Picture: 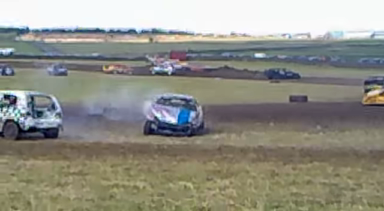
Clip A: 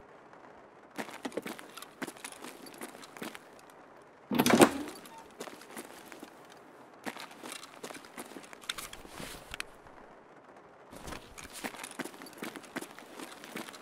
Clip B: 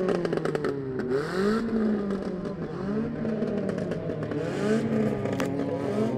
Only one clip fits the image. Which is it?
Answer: B